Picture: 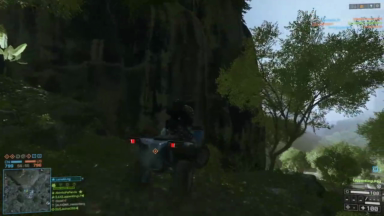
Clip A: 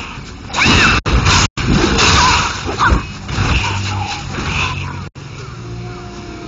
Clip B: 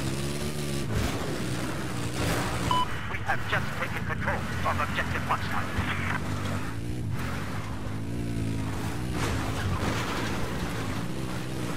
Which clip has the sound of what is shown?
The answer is B